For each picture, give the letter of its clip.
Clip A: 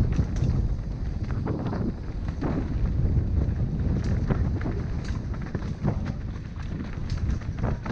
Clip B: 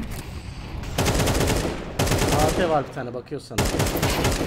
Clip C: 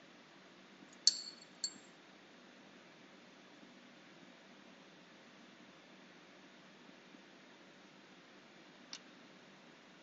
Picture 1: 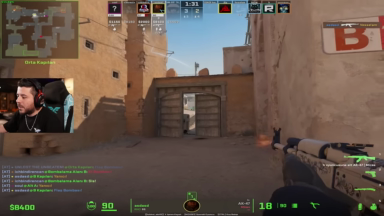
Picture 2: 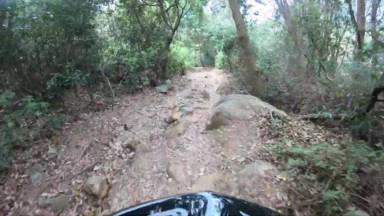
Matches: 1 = B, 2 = A